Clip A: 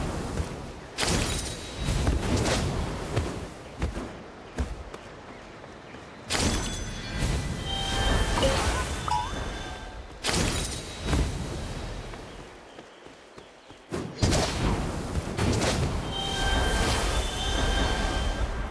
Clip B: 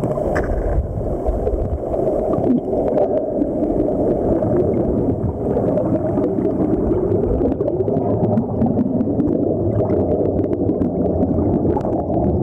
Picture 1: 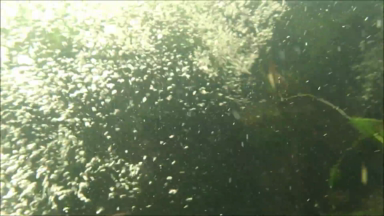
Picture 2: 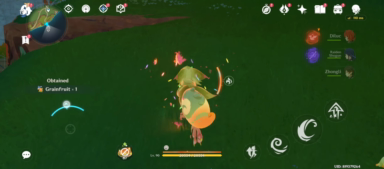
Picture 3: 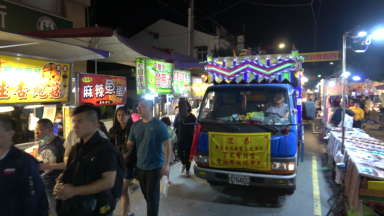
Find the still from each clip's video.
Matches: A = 2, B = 1